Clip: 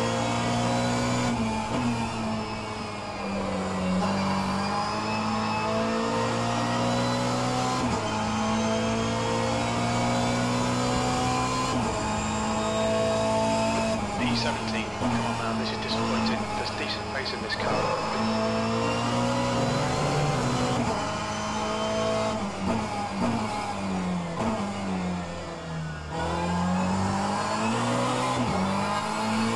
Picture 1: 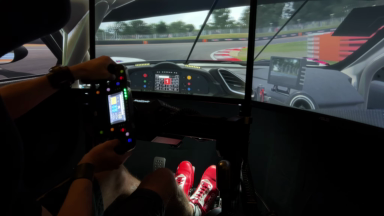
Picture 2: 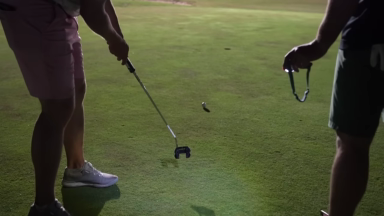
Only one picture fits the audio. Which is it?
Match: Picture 1